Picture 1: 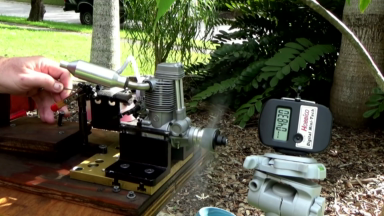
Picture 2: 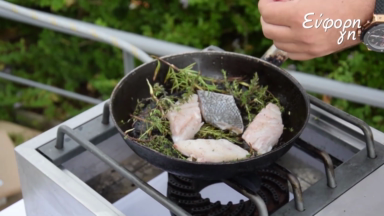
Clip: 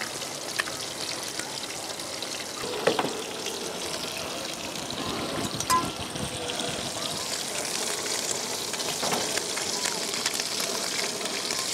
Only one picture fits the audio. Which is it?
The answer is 2